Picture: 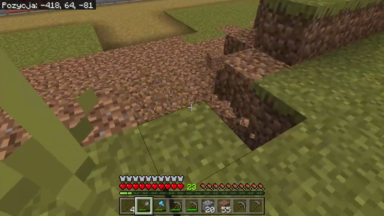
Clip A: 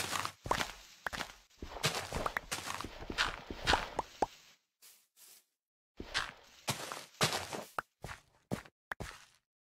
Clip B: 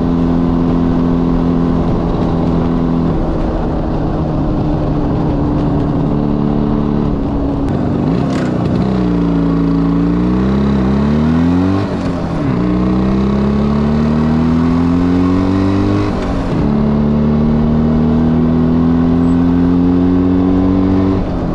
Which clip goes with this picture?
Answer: A